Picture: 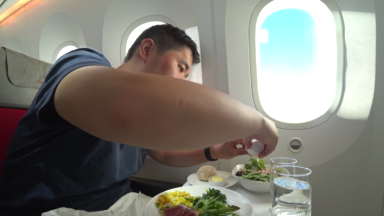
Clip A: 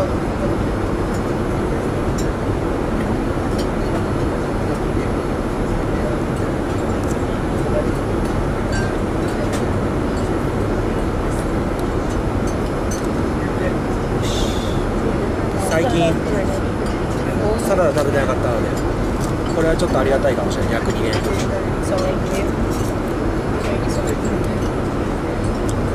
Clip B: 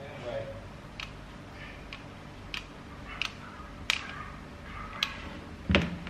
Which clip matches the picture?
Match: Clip A